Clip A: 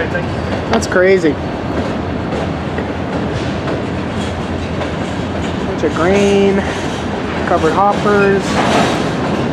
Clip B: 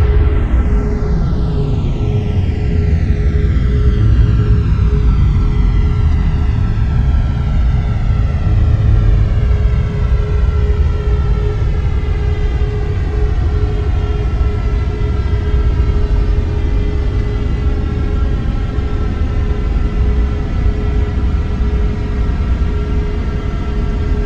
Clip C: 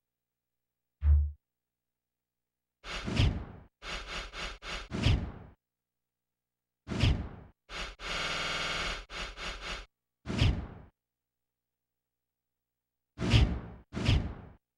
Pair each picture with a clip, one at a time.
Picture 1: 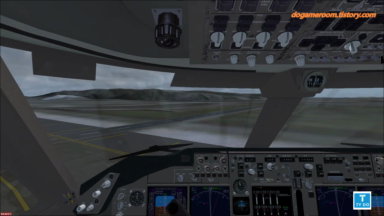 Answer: B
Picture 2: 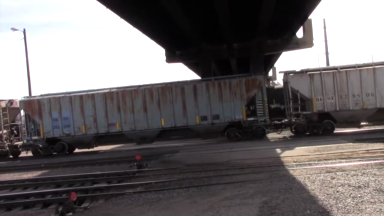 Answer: A